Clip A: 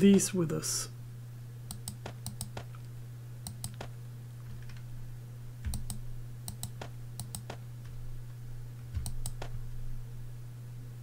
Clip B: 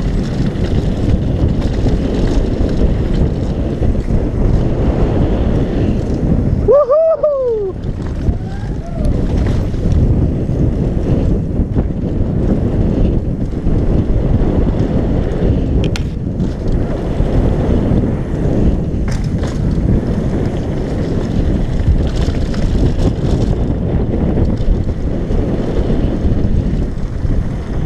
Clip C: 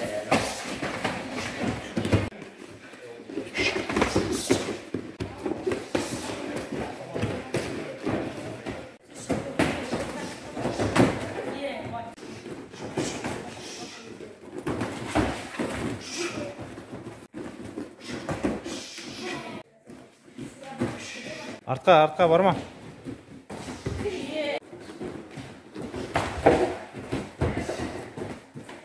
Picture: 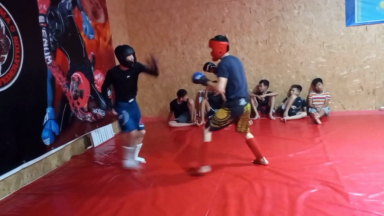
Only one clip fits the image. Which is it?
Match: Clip C